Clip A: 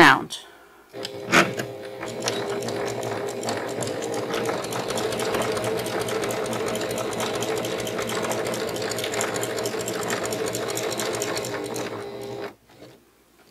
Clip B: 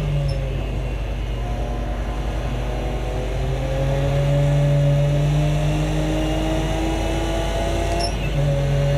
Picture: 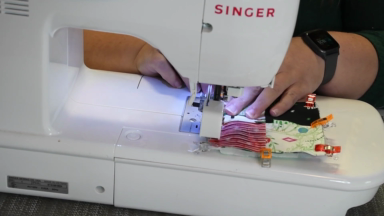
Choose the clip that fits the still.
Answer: A